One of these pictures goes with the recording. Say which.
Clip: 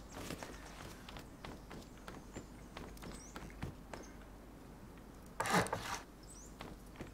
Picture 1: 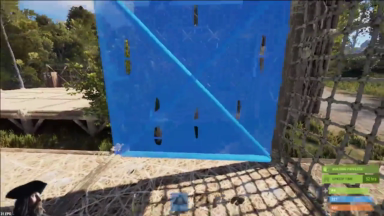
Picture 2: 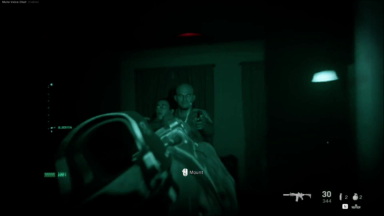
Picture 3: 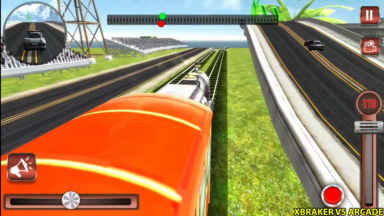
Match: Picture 1